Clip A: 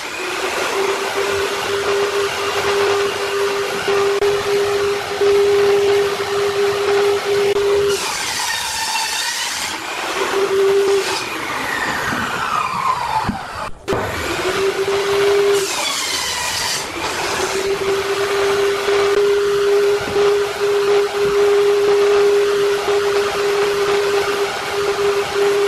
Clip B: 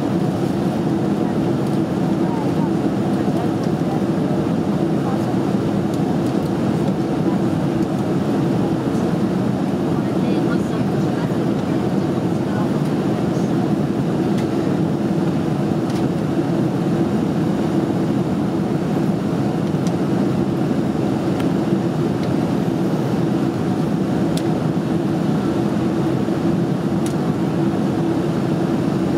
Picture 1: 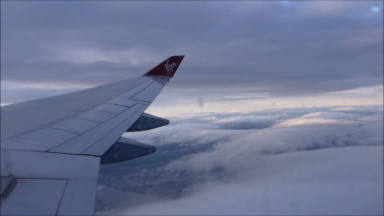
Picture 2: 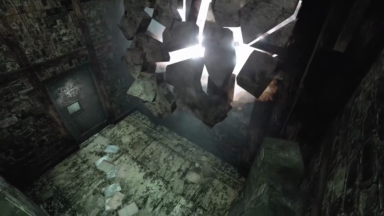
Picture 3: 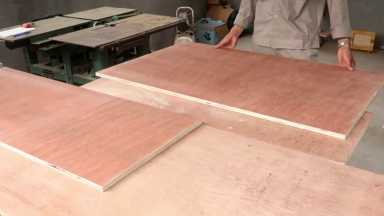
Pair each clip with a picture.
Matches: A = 3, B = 1